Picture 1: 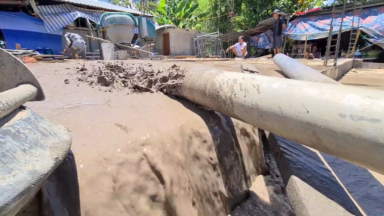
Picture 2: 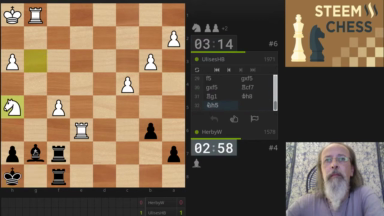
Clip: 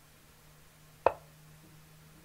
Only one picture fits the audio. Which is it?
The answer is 2